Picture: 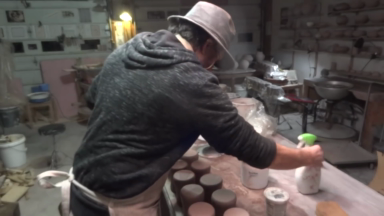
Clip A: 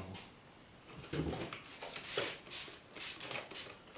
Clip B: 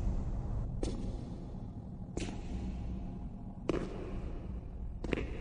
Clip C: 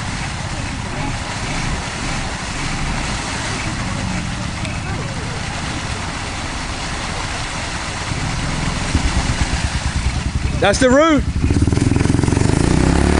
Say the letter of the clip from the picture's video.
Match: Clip A